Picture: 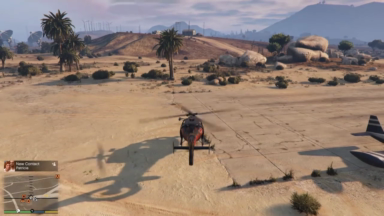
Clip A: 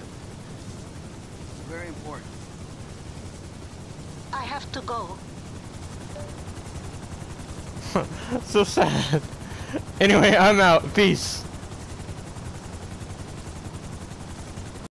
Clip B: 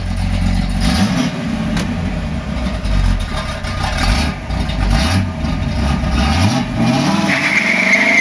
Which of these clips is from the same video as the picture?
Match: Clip A